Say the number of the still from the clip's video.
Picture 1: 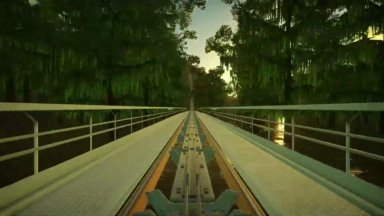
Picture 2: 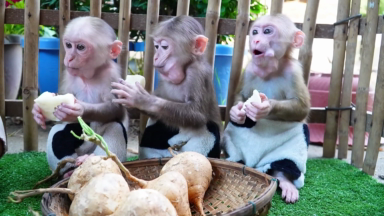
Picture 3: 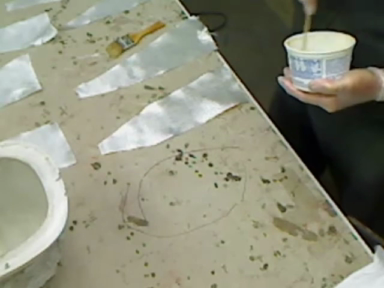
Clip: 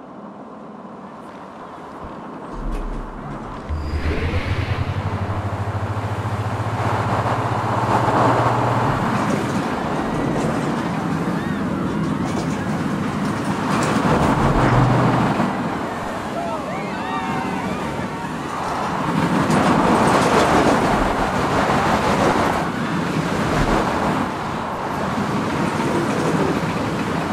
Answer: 1